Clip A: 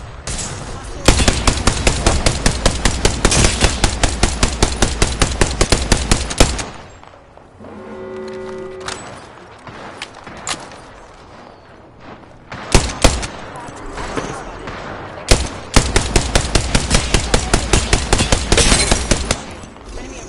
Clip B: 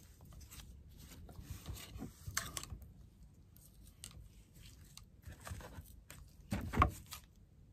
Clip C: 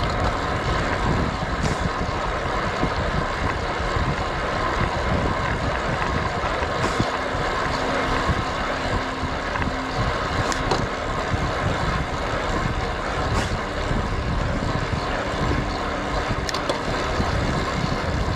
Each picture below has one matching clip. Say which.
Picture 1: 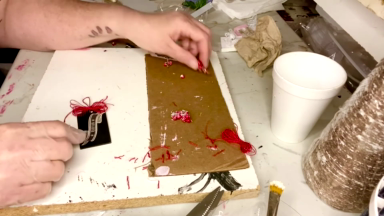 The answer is B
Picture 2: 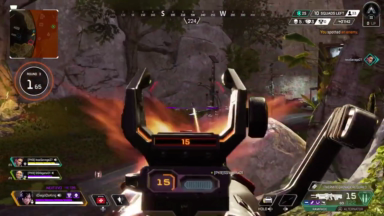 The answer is A